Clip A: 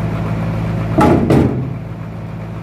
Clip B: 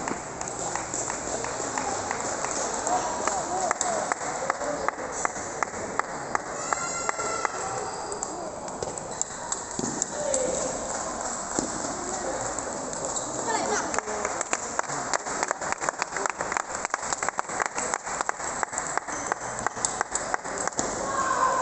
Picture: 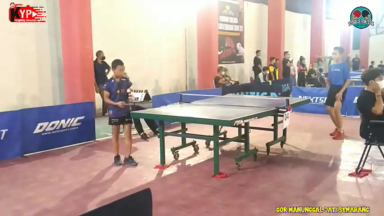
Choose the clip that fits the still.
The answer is B